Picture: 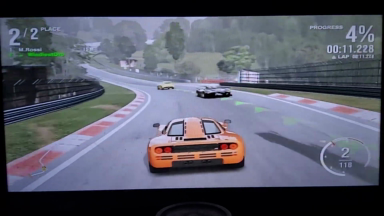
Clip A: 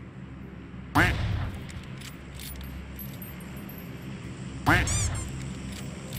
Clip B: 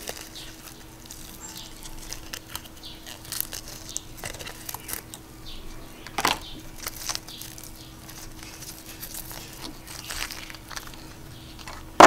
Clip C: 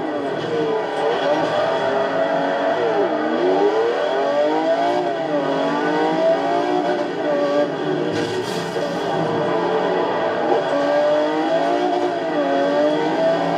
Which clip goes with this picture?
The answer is C